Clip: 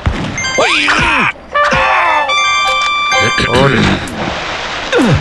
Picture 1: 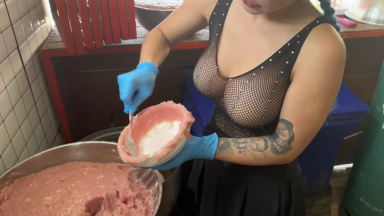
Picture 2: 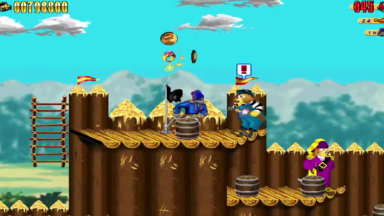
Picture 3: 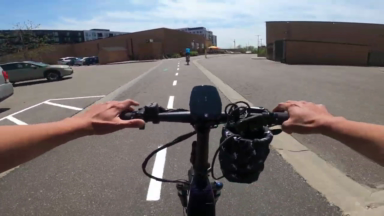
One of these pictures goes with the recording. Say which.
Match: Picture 2